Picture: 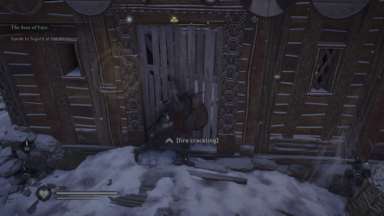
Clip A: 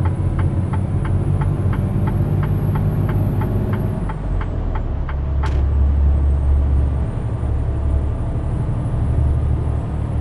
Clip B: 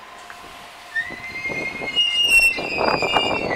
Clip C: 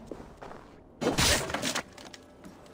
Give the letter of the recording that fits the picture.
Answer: C